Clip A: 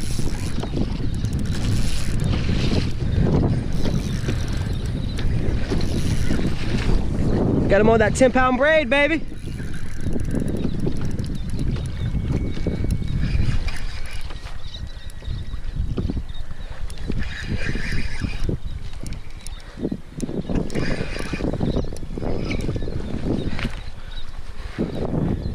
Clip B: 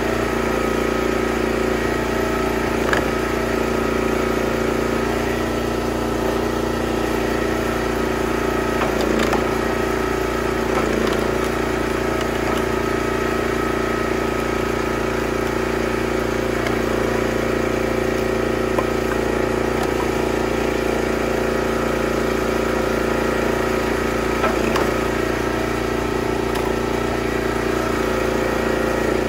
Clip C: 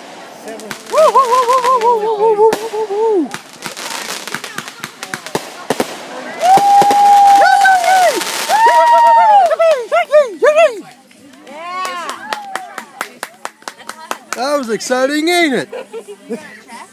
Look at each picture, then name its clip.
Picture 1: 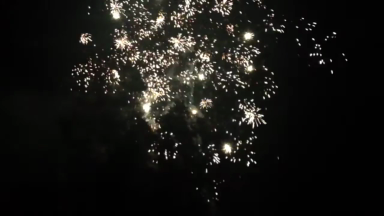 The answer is C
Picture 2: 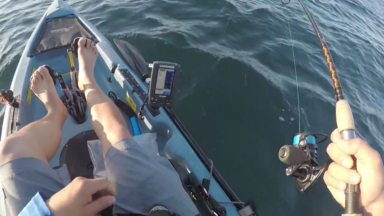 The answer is A